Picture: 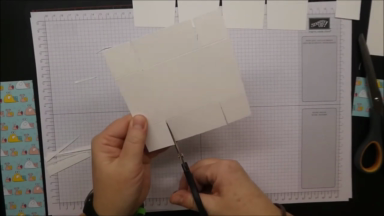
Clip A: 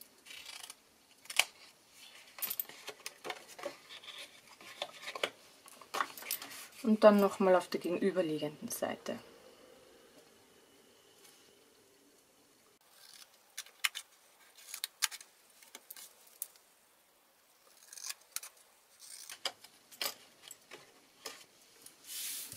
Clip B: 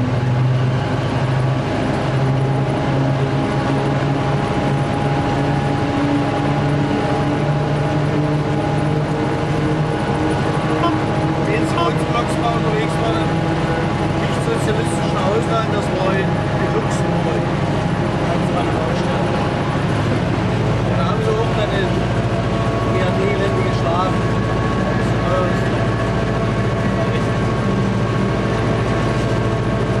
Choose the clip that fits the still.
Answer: A